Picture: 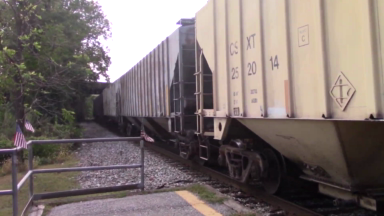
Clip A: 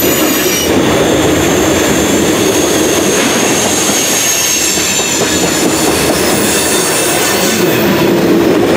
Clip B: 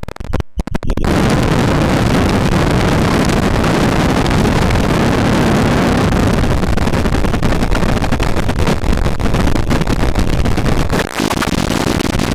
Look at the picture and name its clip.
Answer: A